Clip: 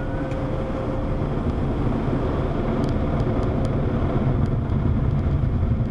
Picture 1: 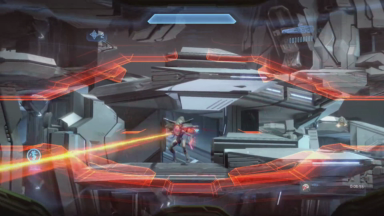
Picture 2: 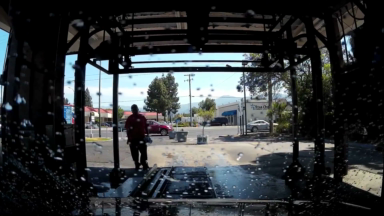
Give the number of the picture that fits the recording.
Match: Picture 2